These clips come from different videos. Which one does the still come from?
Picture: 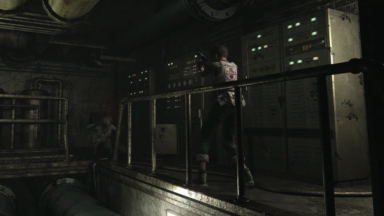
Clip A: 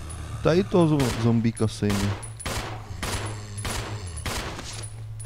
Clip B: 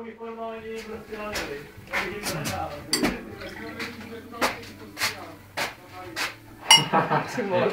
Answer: A